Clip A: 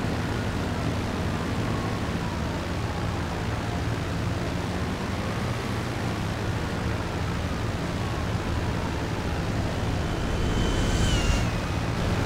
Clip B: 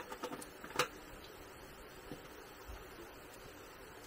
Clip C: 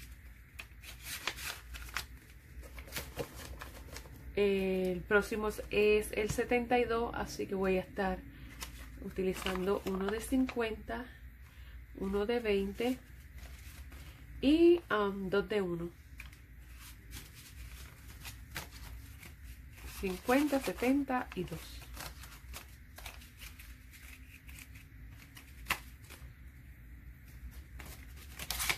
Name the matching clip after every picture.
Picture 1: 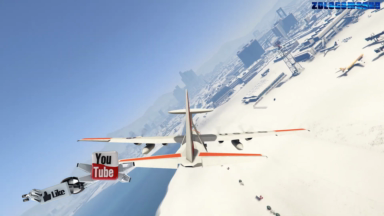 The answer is A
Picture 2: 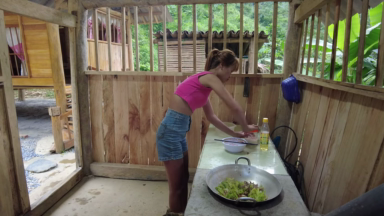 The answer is B